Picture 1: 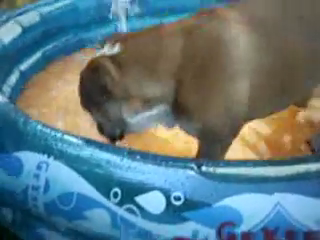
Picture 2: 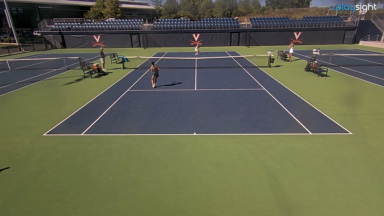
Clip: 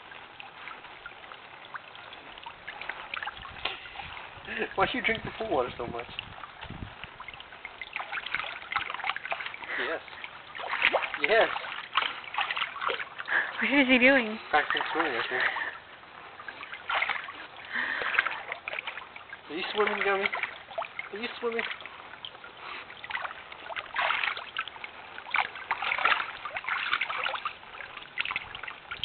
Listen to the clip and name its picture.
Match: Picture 1